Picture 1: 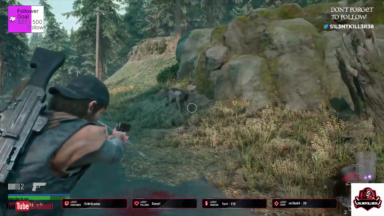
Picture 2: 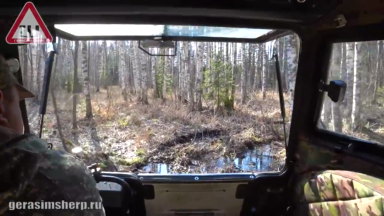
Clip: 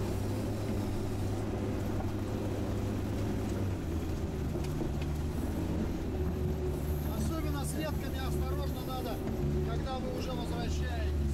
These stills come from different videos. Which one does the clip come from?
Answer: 2